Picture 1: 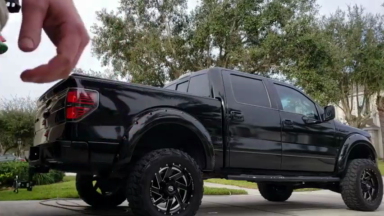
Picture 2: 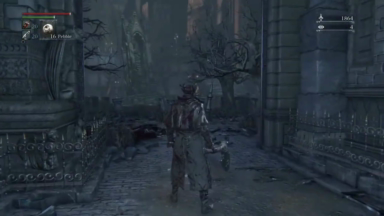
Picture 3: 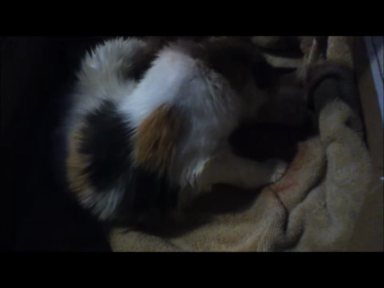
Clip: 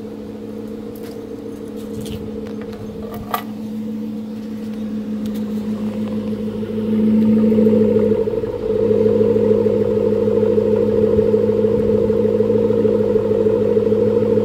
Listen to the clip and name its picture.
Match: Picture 1